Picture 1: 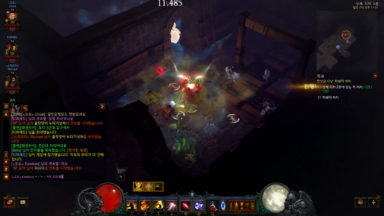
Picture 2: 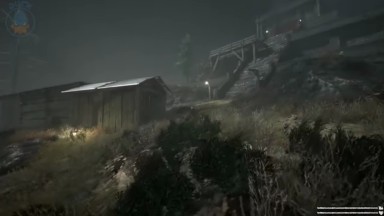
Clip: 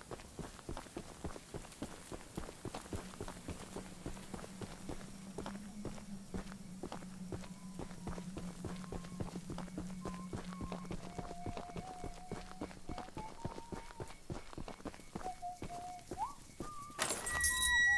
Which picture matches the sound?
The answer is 2